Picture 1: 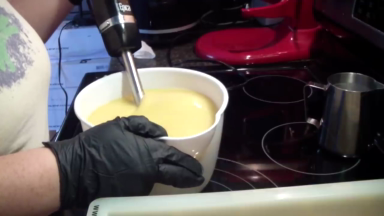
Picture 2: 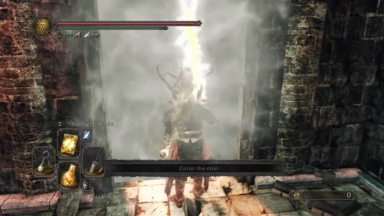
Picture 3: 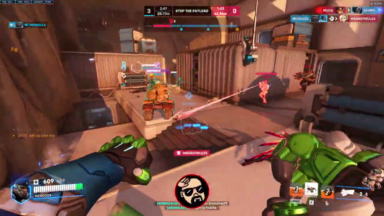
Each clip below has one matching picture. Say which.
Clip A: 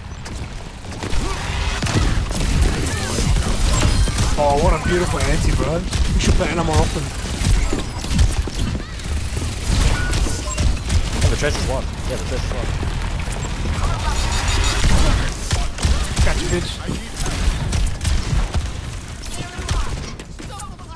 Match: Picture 3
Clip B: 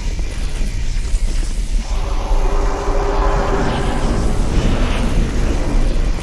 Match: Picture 2